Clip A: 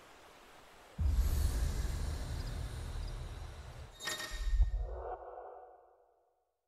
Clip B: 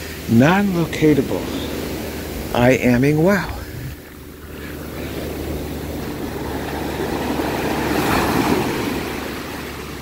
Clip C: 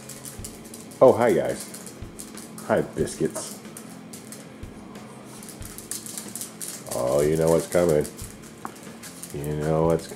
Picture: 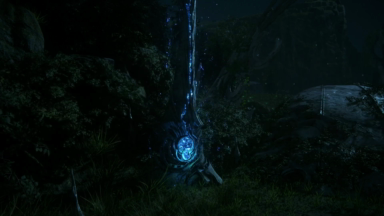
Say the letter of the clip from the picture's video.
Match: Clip A